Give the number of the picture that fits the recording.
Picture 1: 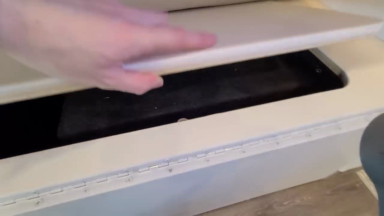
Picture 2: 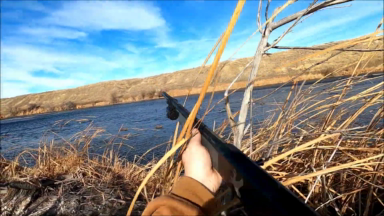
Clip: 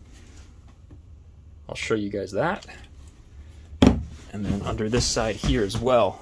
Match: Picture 1